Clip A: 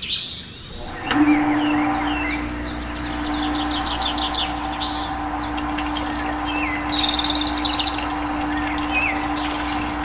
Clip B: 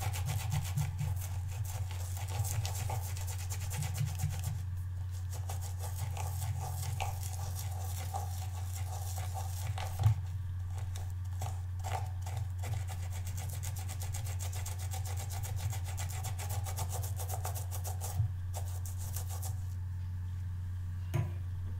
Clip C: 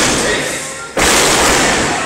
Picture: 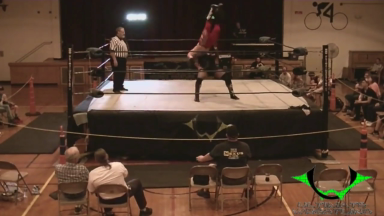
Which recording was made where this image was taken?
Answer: C